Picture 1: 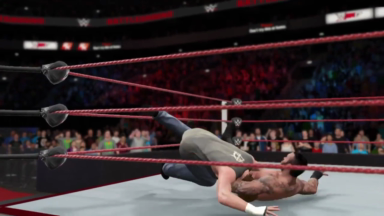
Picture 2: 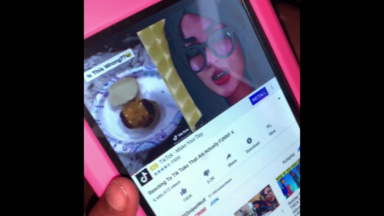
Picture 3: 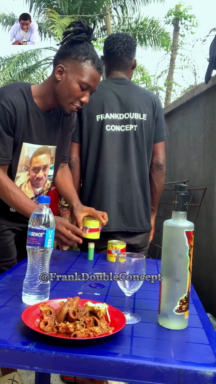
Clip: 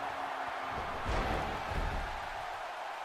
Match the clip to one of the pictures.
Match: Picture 1